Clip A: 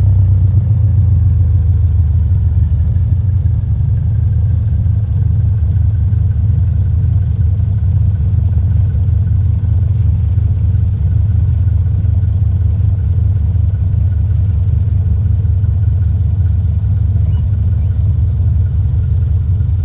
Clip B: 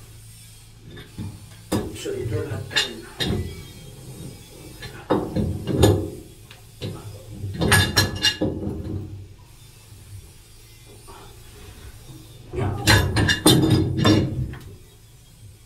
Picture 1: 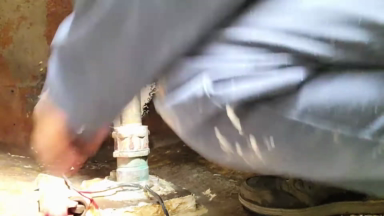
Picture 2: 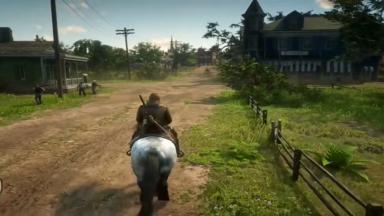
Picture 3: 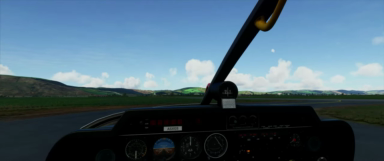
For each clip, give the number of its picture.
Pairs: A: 3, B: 1